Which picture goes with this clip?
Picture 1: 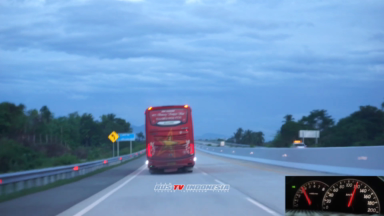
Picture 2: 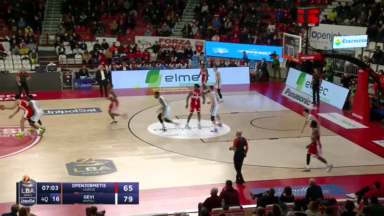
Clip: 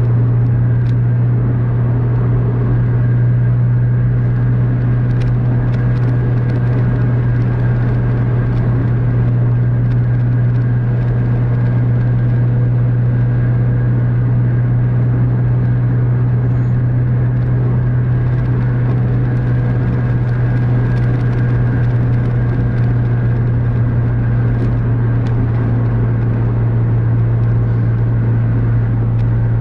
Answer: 1